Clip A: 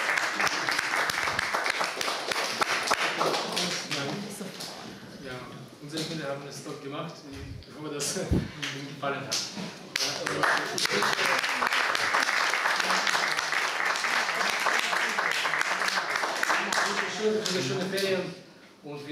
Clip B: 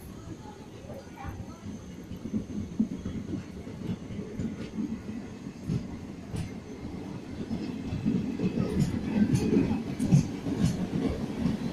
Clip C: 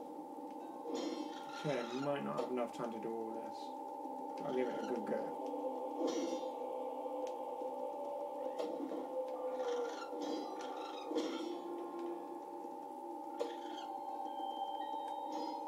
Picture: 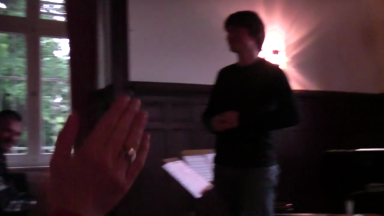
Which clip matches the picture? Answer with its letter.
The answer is A